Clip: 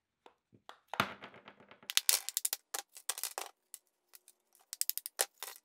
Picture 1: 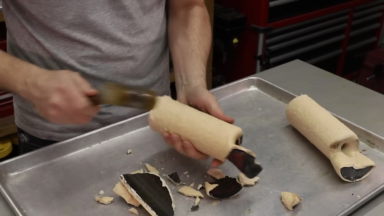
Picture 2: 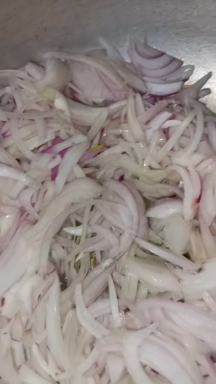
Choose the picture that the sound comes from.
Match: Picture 1